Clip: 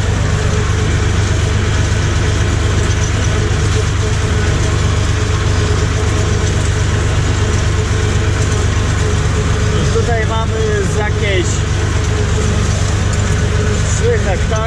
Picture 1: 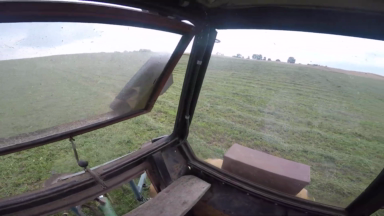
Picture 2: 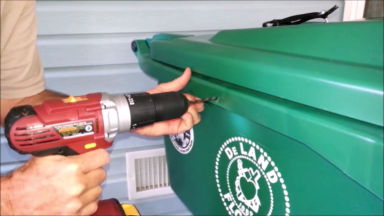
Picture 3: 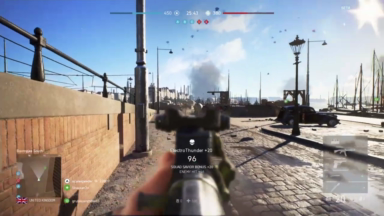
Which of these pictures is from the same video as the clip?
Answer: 1